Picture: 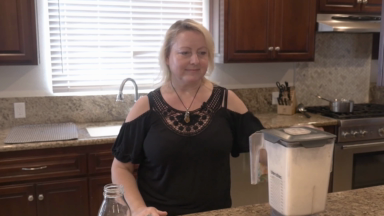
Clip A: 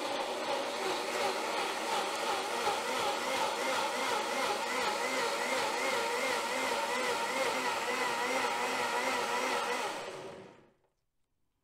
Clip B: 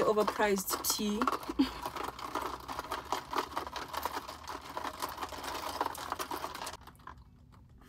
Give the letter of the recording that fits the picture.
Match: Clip A